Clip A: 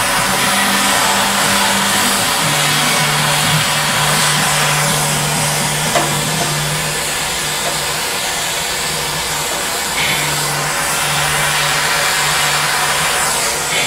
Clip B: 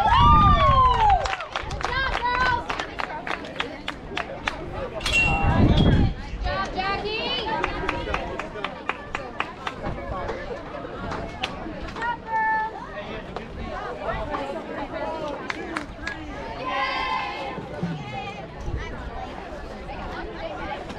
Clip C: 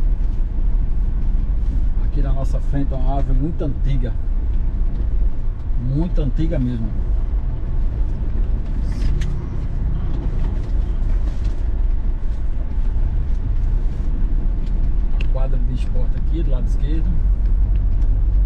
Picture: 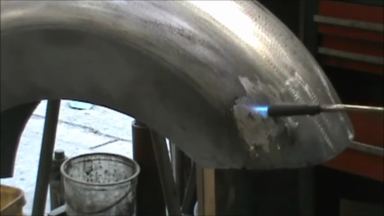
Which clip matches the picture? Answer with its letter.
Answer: A